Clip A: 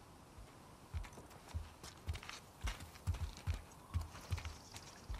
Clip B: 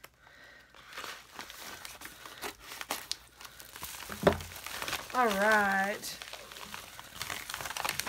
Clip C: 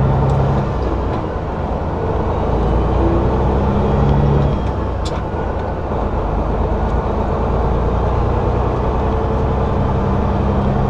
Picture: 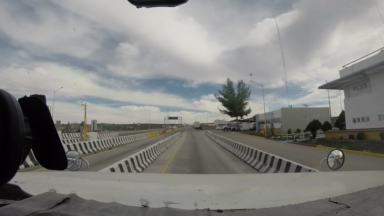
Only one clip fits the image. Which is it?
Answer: C